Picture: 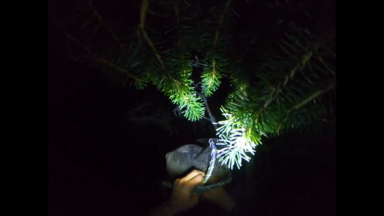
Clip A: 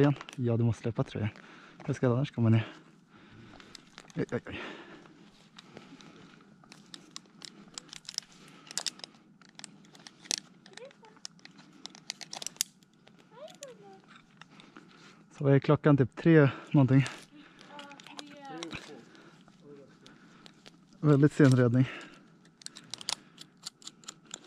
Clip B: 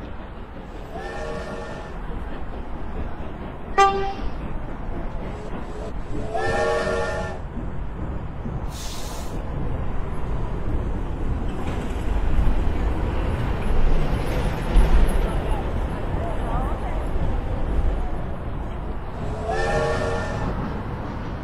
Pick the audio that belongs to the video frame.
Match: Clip A